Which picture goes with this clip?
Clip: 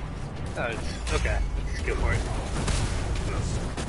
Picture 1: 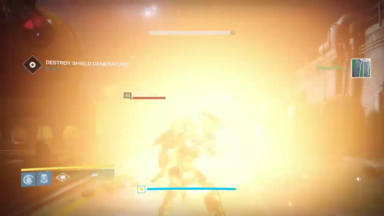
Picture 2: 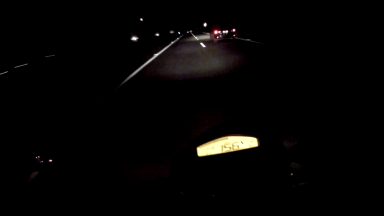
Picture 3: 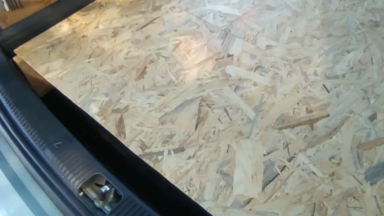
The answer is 1